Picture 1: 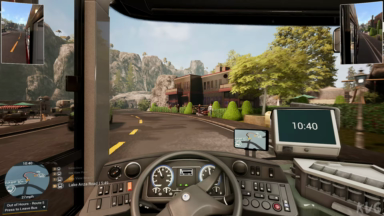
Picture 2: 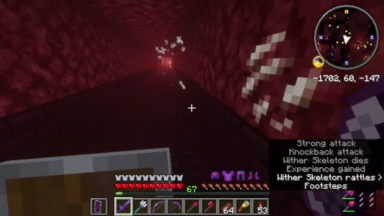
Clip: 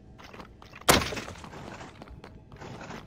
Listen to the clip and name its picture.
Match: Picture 2